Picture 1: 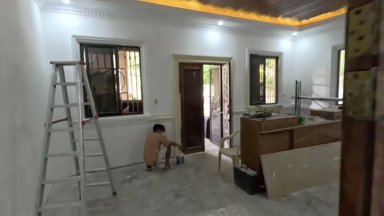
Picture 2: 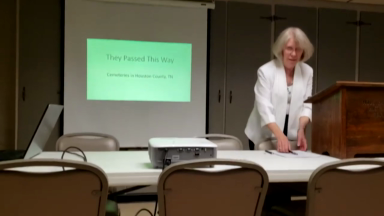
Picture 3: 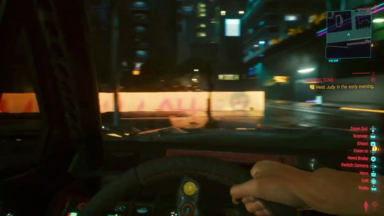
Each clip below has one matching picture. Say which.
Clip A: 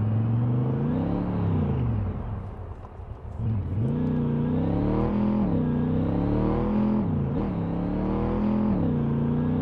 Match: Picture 3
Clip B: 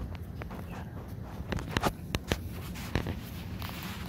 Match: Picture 2